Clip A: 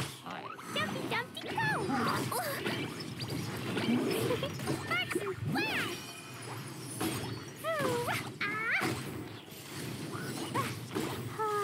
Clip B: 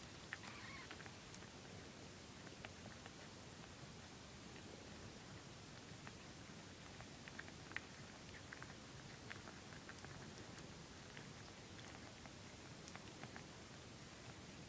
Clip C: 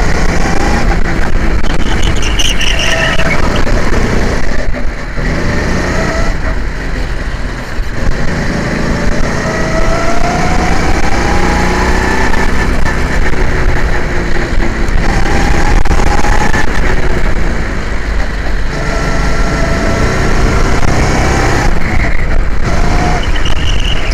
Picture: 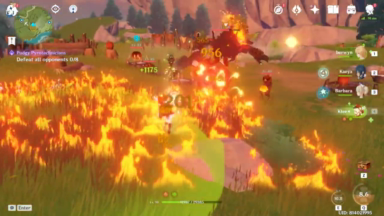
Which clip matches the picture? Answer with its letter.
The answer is A